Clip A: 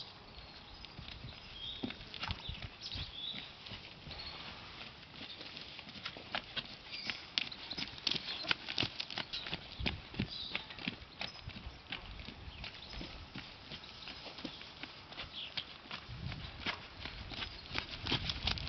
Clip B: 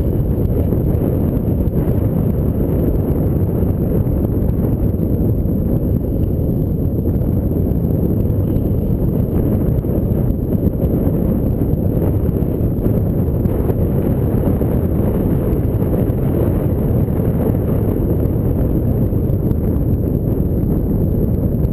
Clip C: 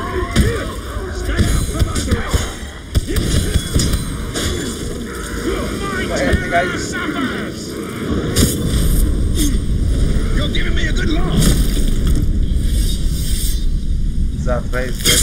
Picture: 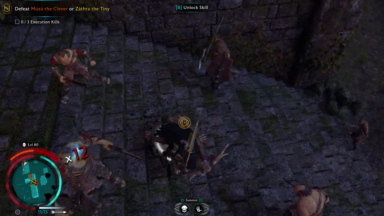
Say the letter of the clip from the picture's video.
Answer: C